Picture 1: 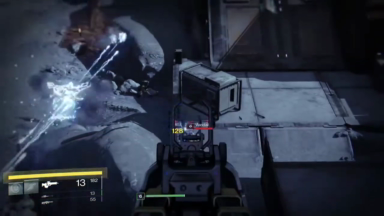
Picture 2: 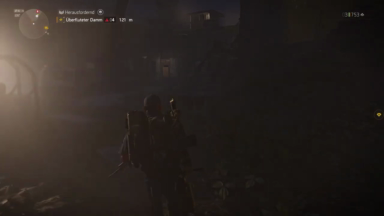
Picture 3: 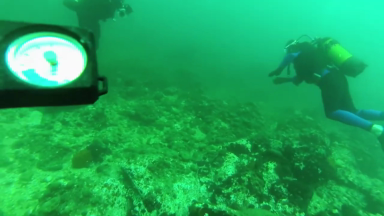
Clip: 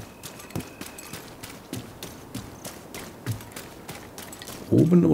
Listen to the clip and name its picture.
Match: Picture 2